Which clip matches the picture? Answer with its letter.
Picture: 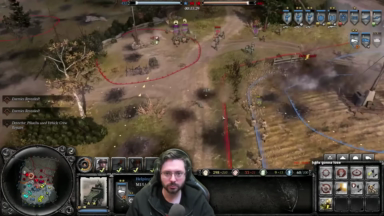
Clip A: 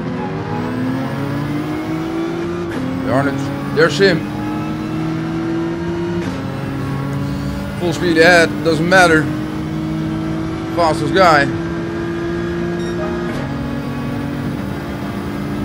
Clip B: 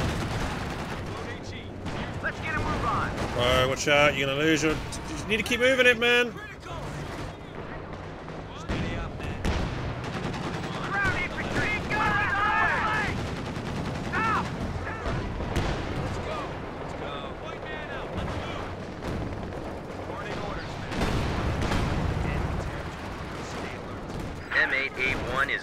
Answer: B